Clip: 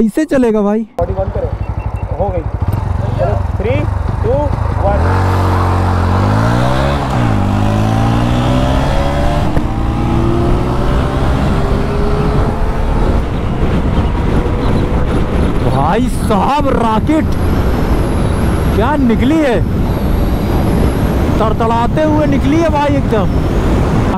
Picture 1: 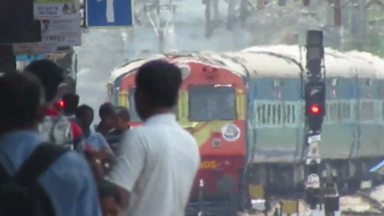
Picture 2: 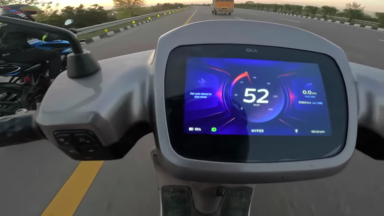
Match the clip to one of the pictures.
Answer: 2